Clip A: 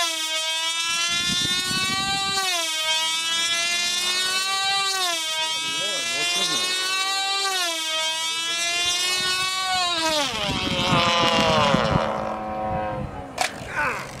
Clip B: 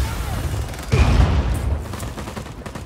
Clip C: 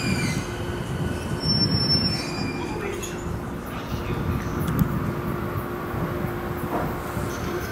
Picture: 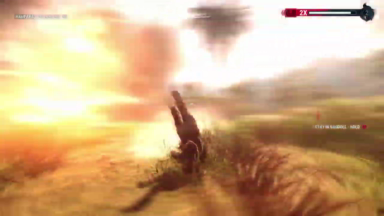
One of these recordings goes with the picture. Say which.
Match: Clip B